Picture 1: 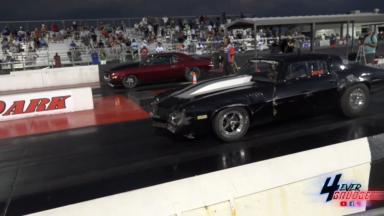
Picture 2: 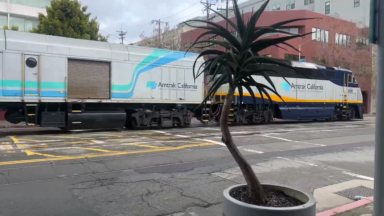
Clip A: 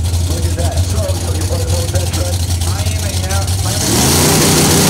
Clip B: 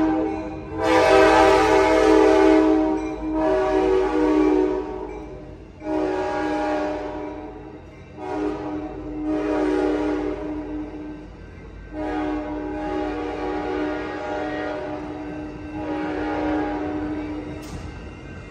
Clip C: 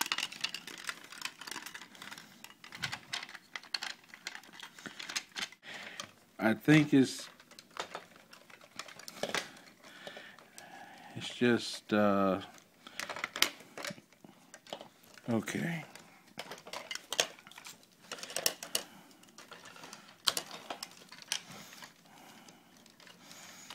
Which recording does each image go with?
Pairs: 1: A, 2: B